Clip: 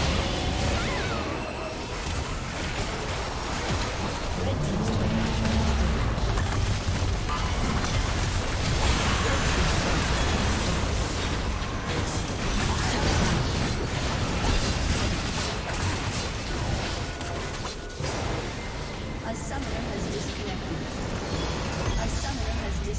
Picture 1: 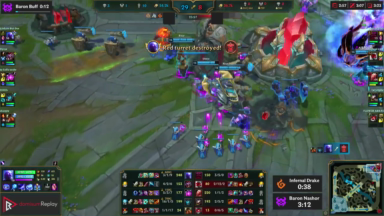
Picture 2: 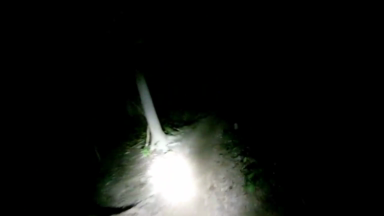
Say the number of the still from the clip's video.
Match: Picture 1